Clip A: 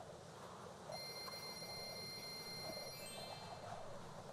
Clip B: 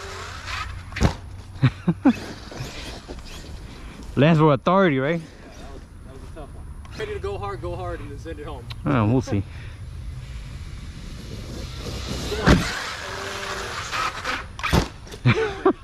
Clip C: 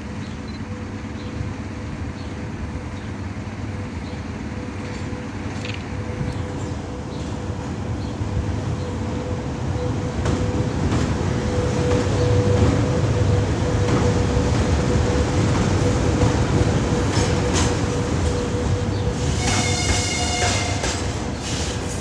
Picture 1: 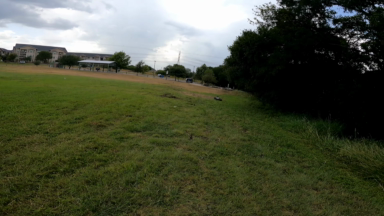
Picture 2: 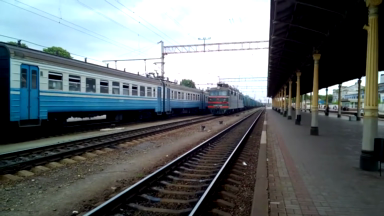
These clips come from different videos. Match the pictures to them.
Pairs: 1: B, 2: C